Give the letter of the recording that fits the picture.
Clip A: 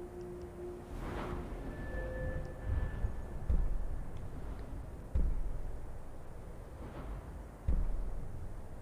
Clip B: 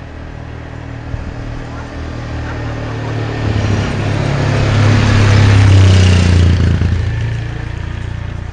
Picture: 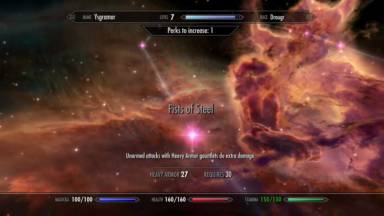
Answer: A